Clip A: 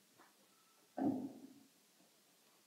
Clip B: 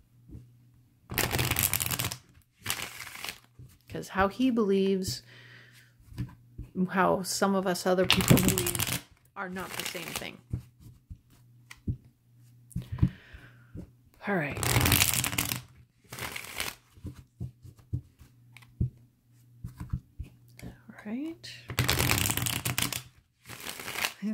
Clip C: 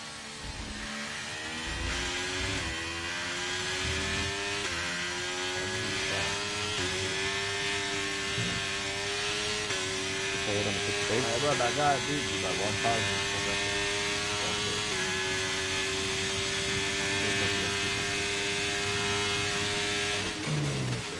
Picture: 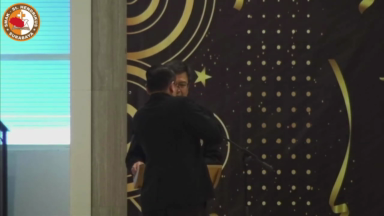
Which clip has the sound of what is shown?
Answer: A